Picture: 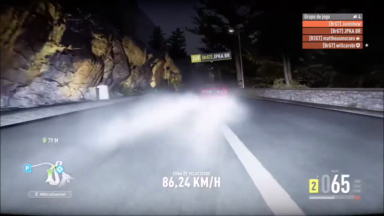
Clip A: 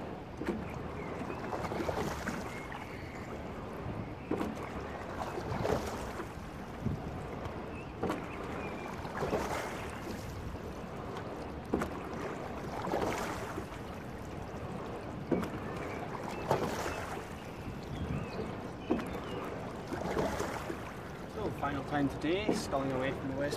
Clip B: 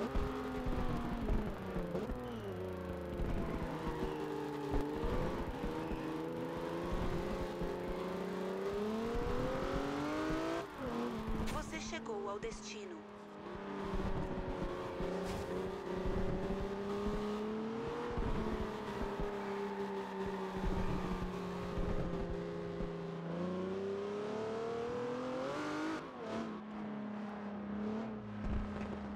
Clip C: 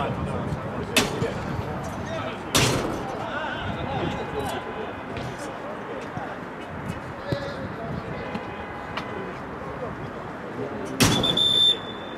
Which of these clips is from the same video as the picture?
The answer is B